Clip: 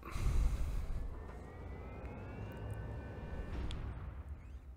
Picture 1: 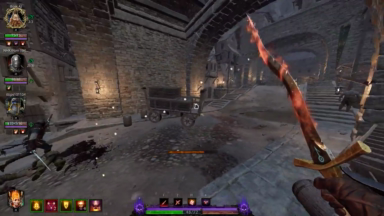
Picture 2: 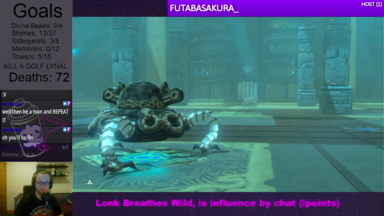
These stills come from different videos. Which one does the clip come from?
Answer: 2